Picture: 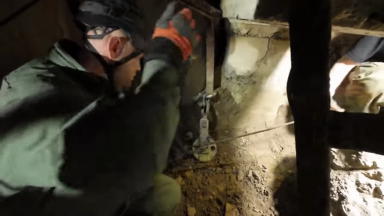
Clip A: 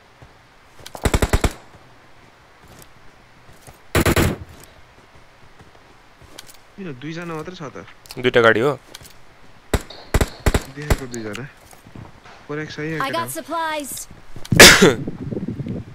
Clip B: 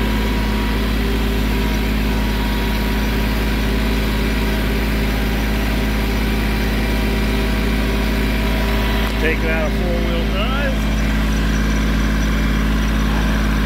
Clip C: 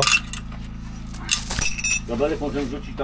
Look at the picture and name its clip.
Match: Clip C